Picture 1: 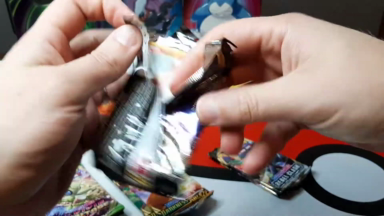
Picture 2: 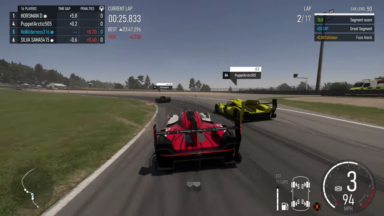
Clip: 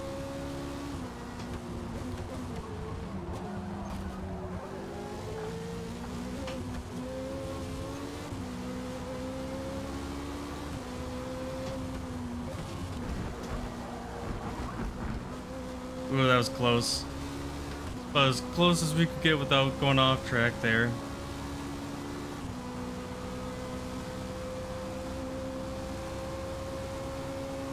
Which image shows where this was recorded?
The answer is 2